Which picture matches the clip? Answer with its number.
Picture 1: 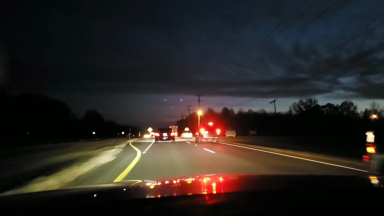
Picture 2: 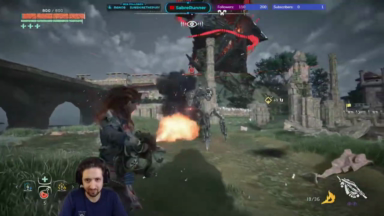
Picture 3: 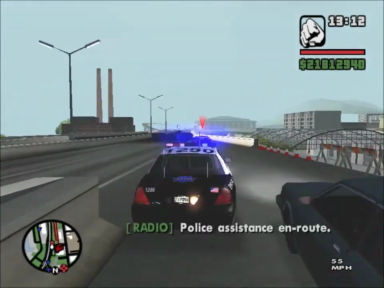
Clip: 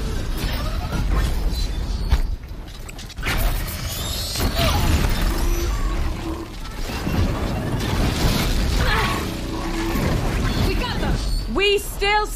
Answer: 2